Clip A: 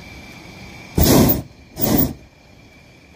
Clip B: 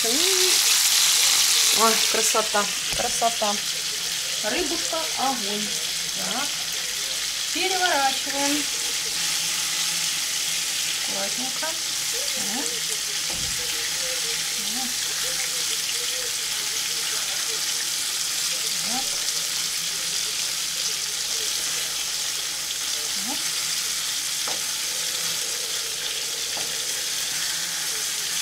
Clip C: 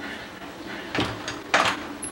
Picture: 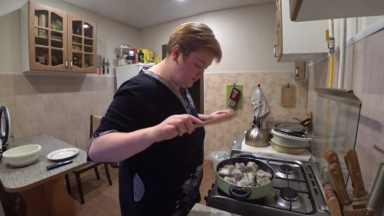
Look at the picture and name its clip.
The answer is B